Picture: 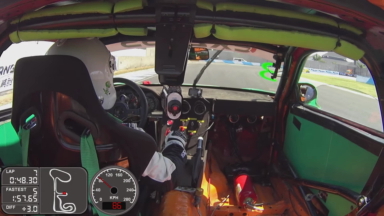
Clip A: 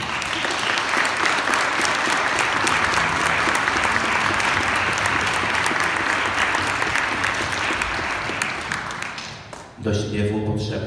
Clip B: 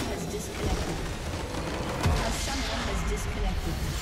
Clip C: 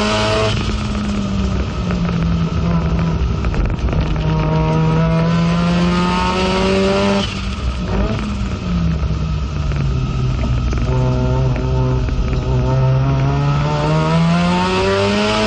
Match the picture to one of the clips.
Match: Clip C